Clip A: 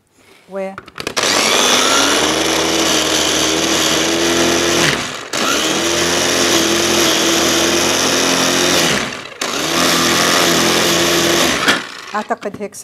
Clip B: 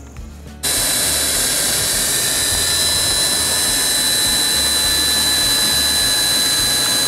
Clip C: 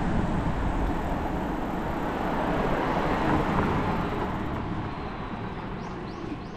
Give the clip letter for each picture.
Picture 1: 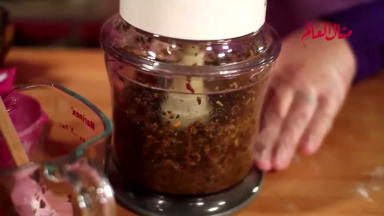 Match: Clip A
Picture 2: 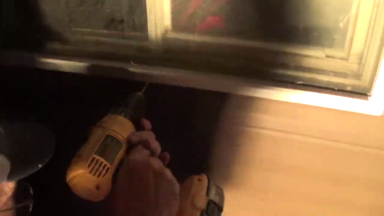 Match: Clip B